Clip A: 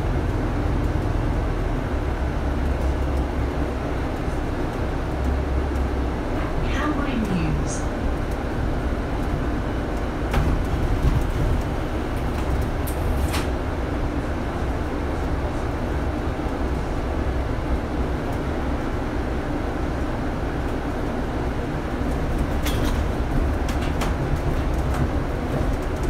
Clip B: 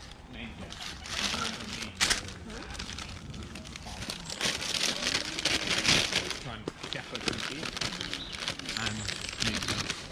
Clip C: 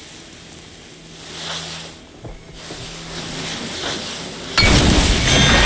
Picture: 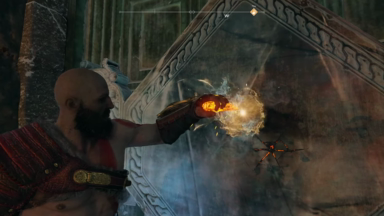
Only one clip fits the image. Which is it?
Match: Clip C